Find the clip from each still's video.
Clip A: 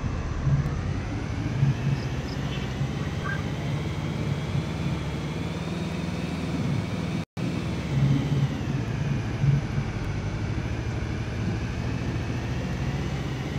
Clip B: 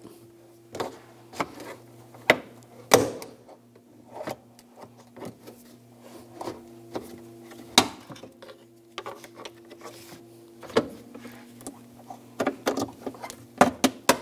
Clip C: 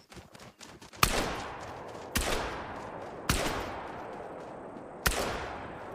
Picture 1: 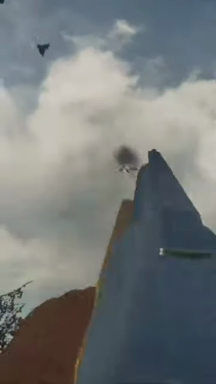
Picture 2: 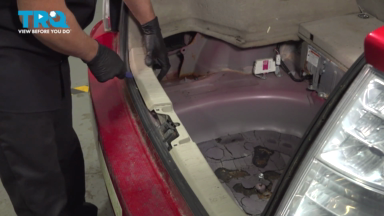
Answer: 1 C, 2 B